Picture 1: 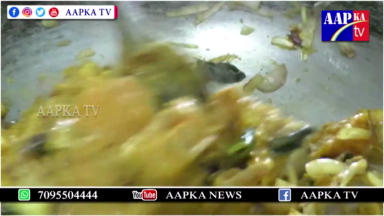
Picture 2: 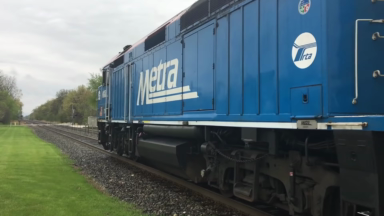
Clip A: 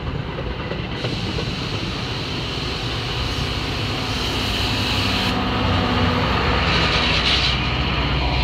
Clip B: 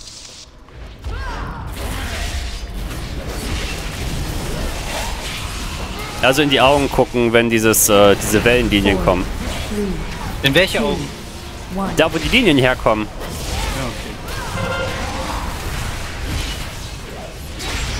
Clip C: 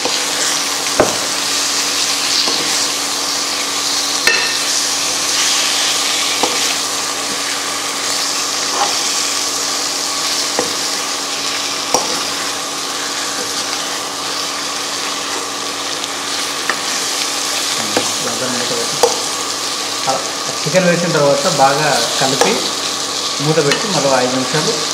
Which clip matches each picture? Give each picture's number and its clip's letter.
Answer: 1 C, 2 A